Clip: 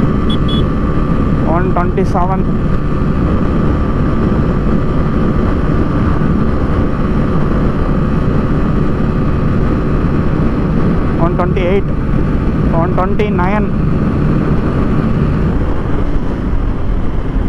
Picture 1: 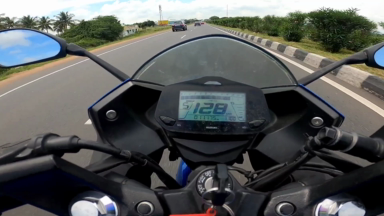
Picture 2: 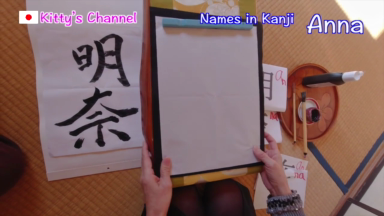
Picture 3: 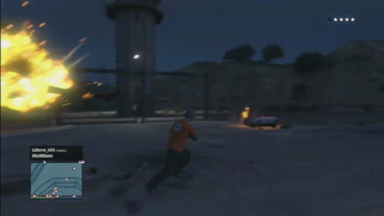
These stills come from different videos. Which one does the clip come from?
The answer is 1